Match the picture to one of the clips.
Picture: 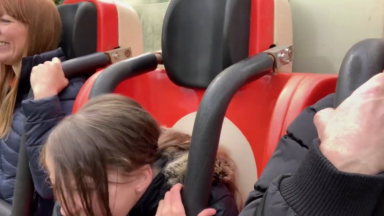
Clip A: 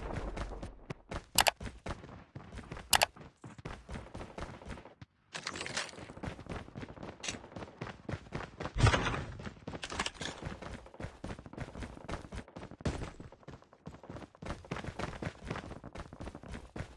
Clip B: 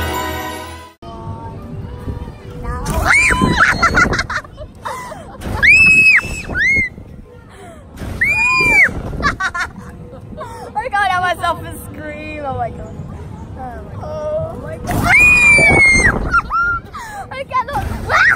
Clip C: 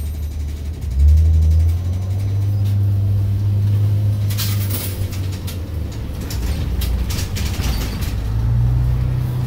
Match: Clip B